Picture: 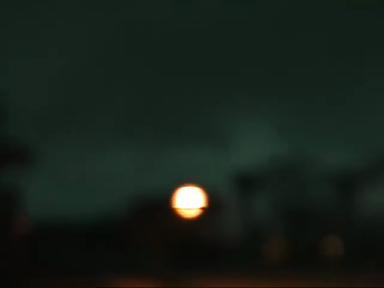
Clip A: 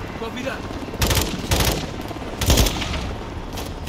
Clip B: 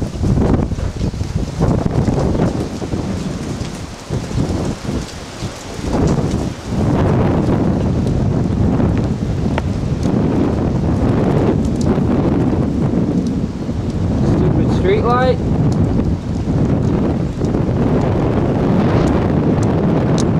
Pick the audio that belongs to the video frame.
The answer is B